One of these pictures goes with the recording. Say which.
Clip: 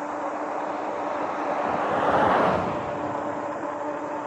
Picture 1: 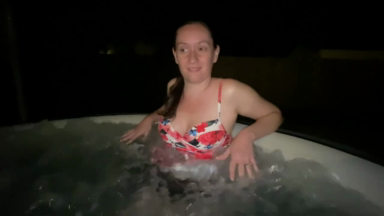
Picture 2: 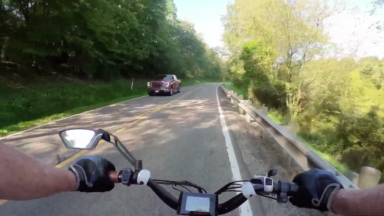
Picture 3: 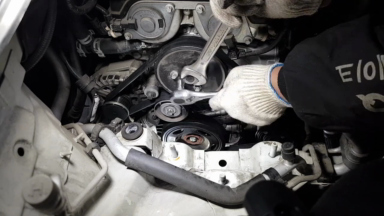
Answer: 2